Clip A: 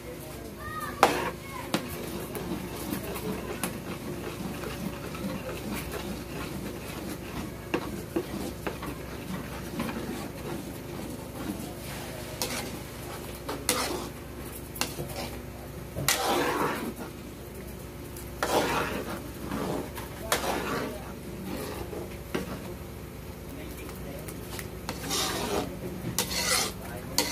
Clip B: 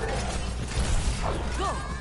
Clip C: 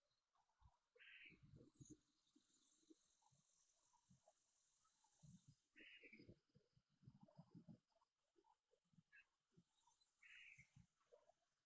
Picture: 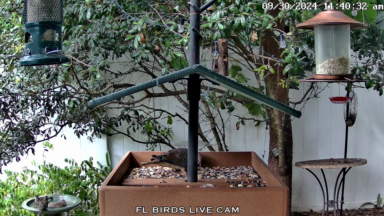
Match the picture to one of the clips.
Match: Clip C